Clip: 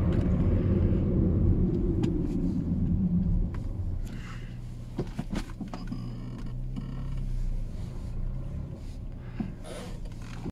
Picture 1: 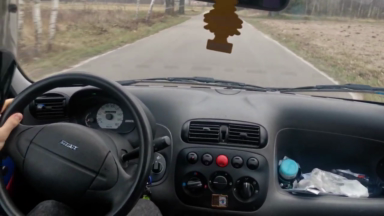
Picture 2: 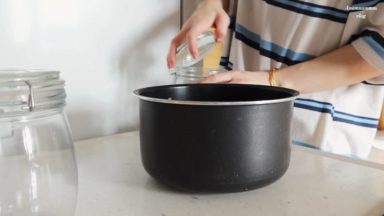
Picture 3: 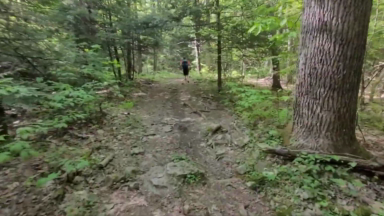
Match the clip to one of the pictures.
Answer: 1